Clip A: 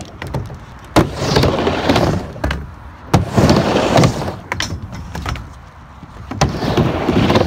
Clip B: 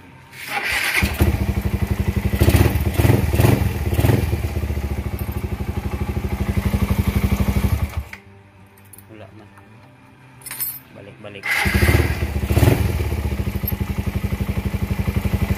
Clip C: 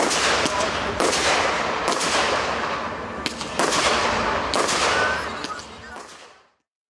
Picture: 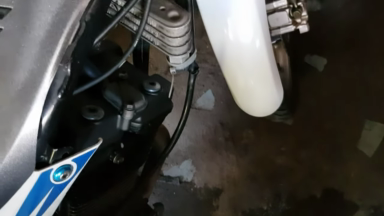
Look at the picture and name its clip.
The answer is B